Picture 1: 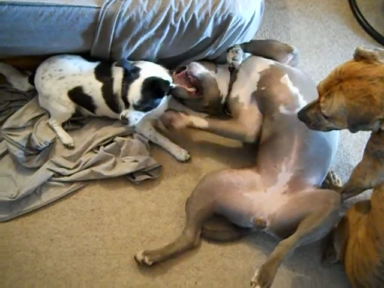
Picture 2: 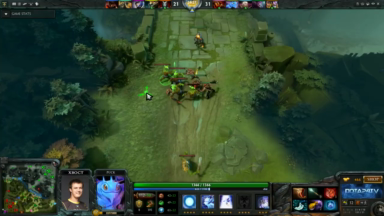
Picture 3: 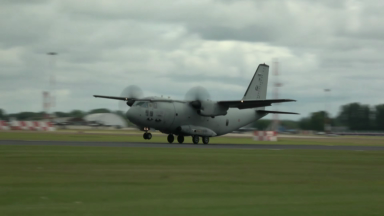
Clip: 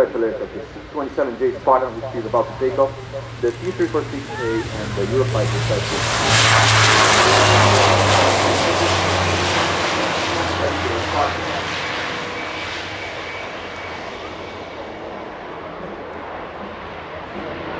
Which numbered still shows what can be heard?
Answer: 3